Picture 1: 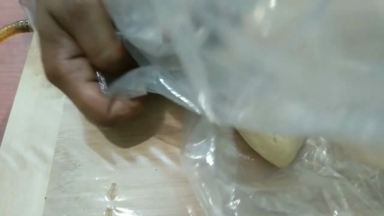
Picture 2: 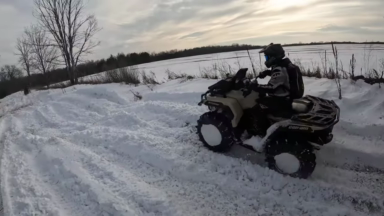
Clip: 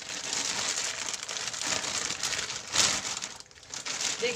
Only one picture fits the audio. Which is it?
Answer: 1